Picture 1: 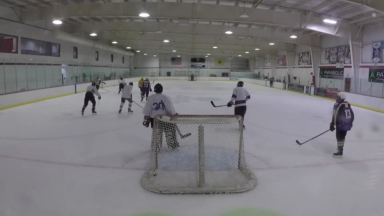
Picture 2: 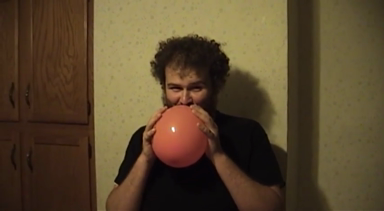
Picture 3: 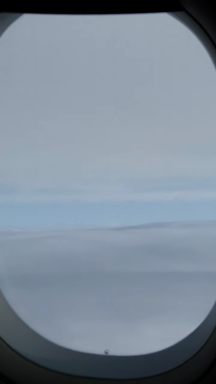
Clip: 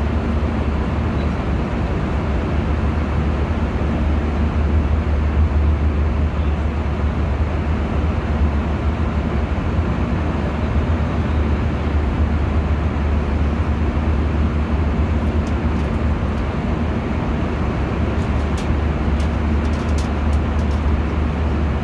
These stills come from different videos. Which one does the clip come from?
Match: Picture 3